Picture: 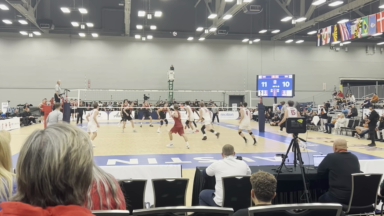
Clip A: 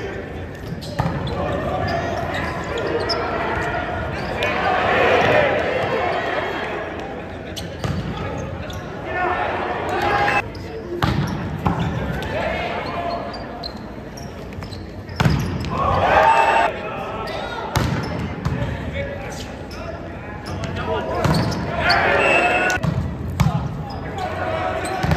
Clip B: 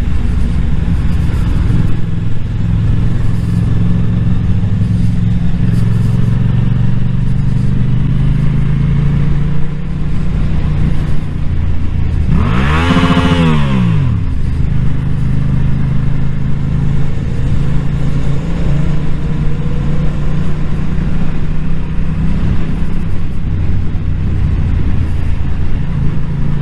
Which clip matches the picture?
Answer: A